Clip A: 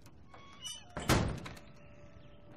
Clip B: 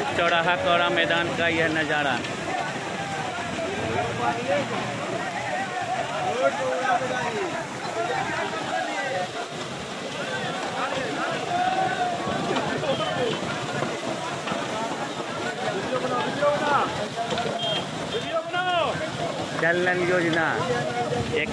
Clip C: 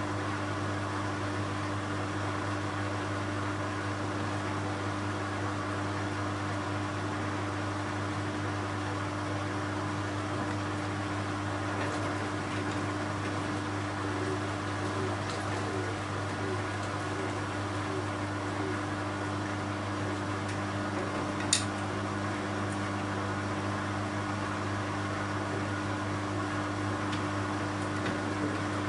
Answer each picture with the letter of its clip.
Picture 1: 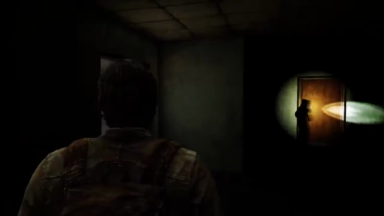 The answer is A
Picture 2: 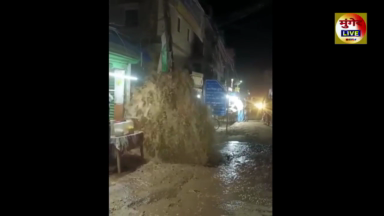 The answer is B